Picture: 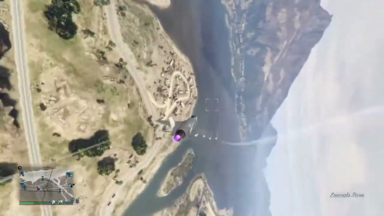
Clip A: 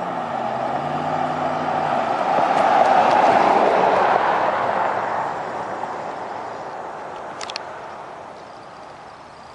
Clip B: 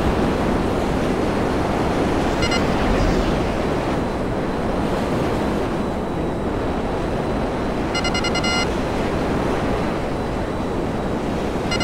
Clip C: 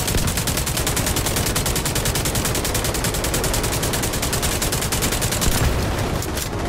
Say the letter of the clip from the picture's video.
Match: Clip B